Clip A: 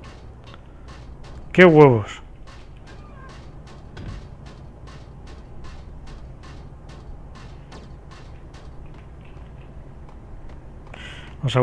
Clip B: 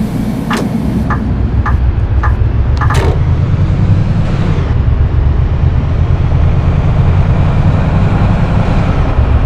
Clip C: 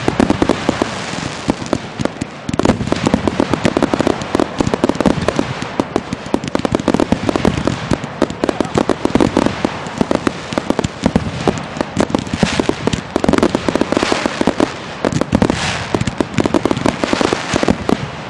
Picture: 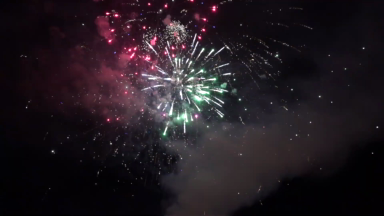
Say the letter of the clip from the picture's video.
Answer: C